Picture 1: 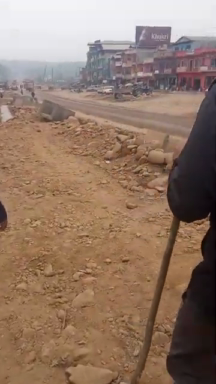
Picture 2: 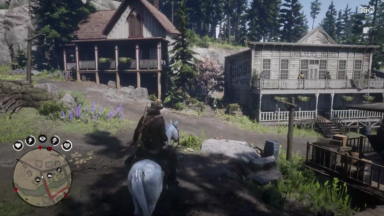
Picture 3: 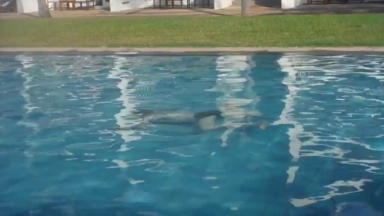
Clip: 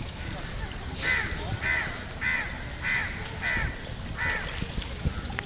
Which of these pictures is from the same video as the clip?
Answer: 3